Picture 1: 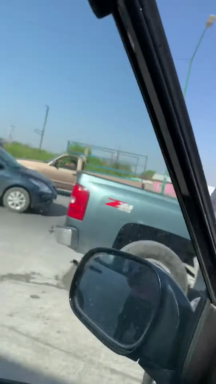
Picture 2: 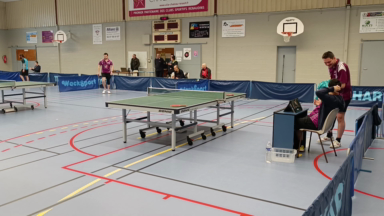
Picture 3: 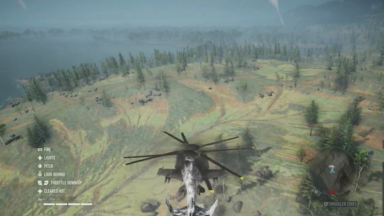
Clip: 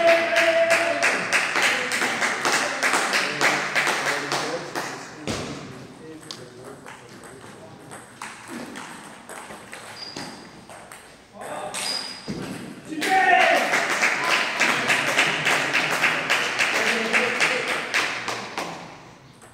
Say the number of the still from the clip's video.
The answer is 2